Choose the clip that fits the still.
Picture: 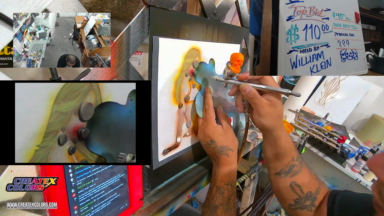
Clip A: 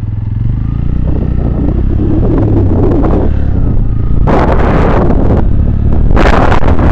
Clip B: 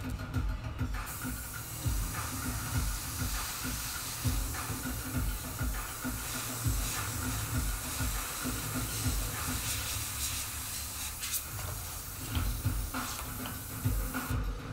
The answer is B